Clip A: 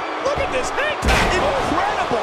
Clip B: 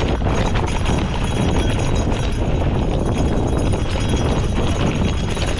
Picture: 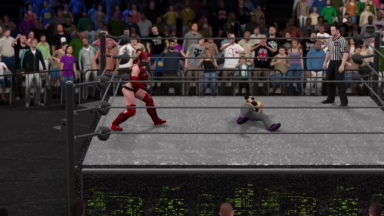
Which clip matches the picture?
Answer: A